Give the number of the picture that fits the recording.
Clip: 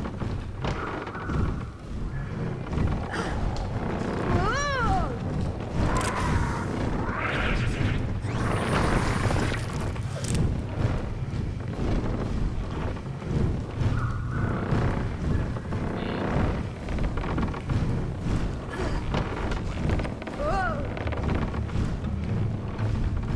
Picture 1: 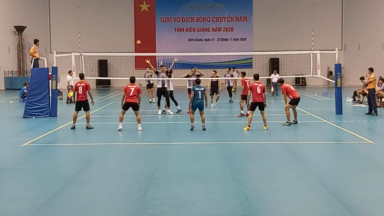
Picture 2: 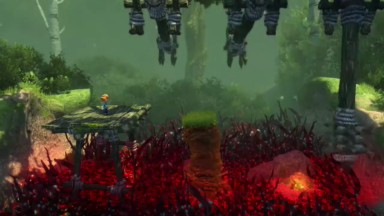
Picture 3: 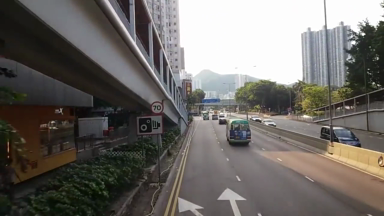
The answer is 2